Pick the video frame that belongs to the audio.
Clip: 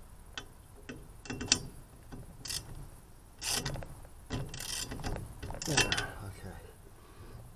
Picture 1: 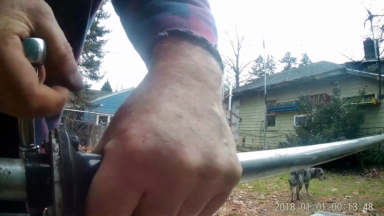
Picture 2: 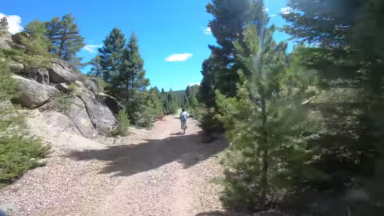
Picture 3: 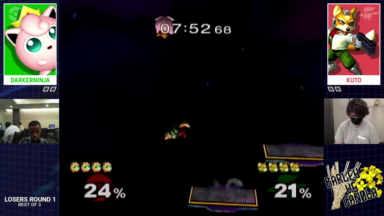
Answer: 1